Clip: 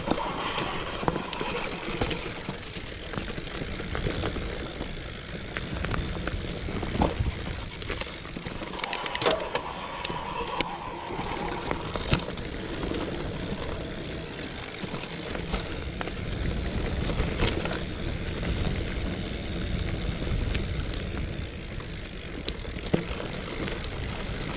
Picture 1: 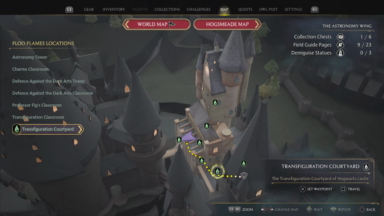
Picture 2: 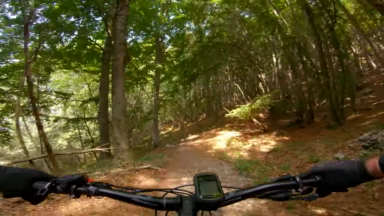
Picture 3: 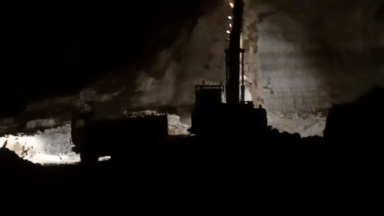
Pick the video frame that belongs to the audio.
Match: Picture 2